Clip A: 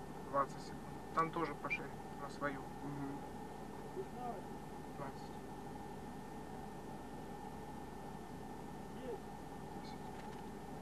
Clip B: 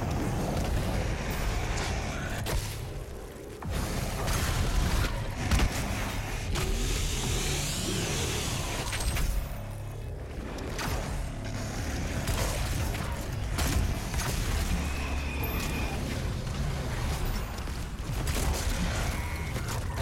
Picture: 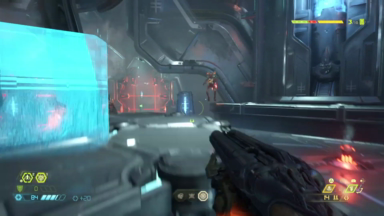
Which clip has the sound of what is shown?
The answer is B